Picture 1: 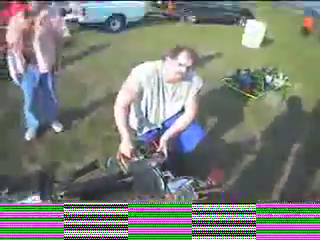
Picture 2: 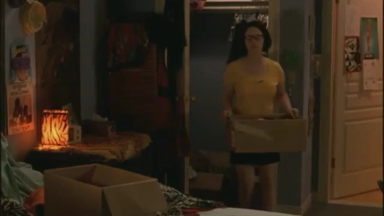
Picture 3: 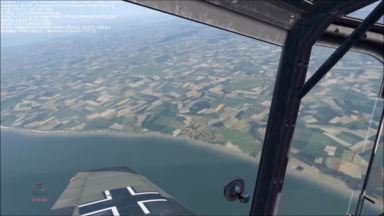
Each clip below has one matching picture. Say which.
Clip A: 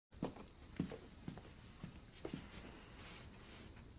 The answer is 2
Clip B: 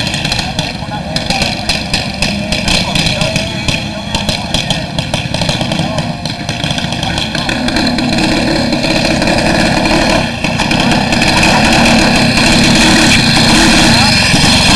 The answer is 1